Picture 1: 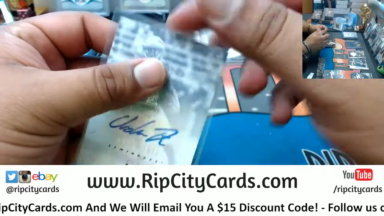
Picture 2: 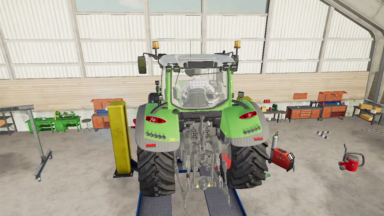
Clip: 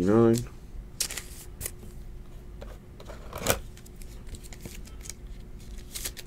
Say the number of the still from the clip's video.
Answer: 1